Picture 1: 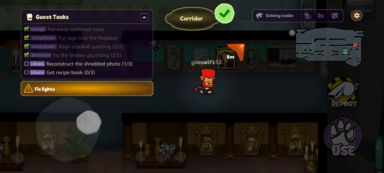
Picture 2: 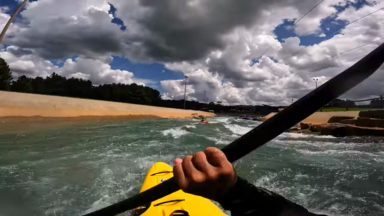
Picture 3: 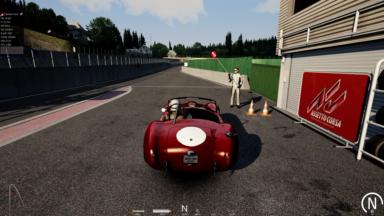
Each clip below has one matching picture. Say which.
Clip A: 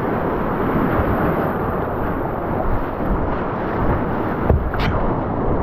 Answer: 2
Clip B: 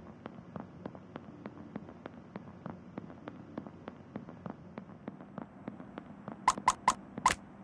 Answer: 1